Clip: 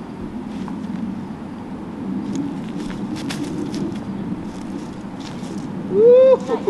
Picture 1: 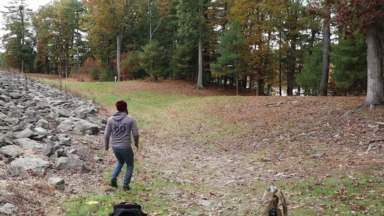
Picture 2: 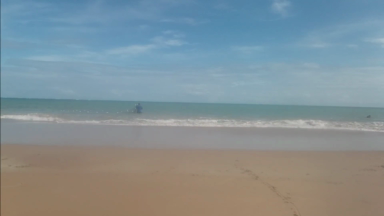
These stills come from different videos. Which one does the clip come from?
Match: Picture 1